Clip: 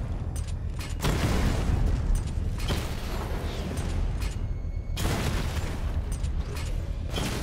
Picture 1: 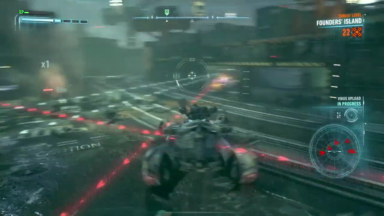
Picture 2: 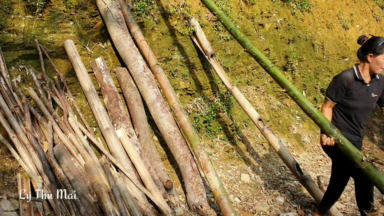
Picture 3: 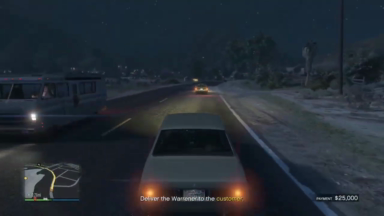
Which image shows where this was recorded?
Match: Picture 1